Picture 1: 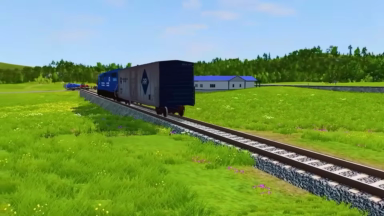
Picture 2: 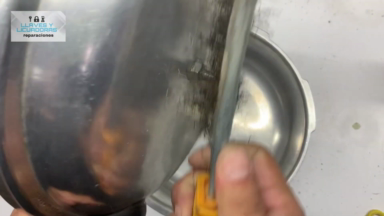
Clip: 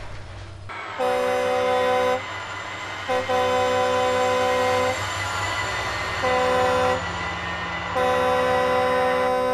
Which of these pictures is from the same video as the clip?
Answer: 1